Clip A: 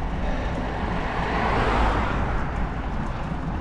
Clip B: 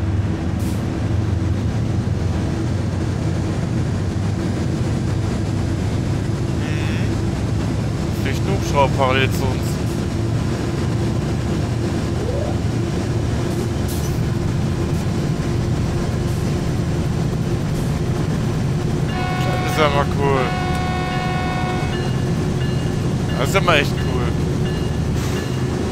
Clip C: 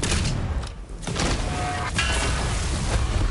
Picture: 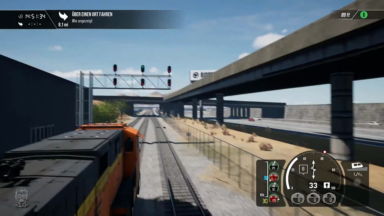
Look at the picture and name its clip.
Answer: B